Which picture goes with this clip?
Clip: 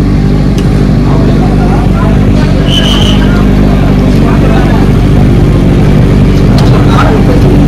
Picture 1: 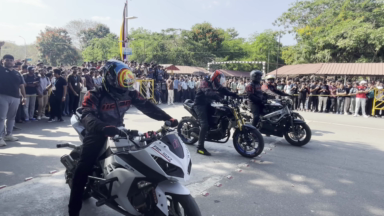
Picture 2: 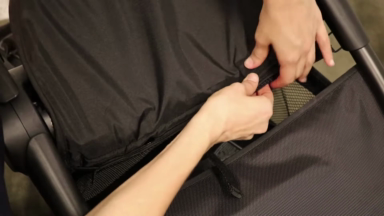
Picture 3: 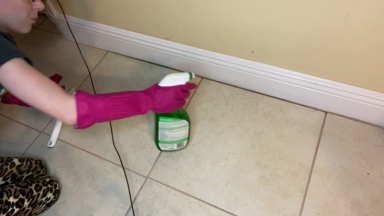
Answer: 1